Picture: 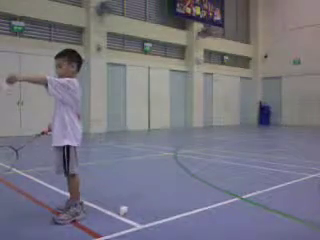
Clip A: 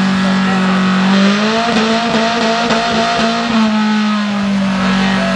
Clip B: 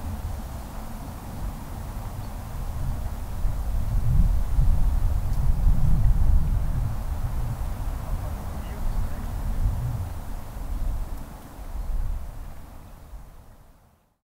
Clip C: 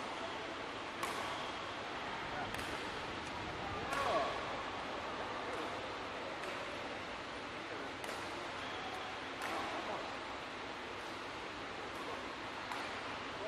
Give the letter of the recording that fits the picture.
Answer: C